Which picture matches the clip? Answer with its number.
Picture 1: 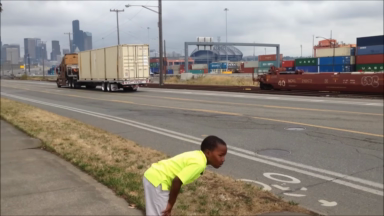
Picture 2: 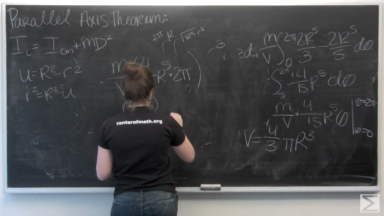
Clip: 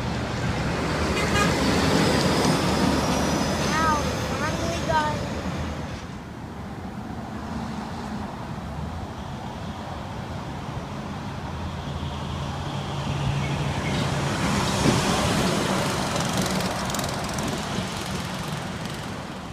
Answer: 1